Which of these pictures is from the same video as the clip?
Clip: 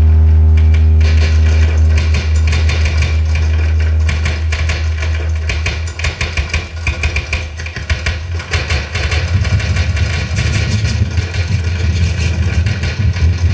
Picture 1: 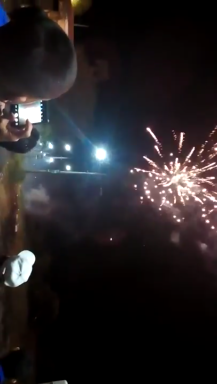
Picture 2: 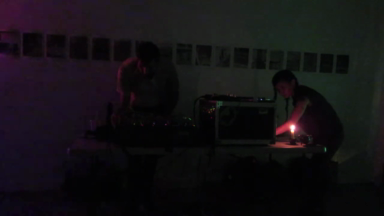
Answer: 2